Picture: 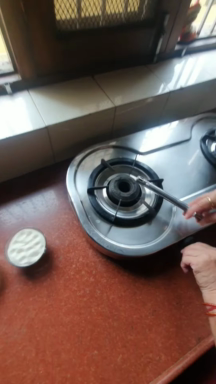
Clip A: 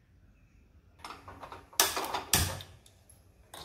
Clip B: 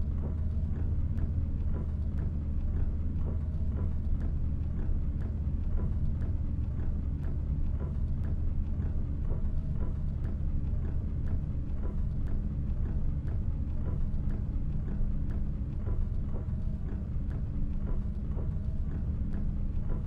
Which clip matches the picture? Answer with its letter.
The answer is A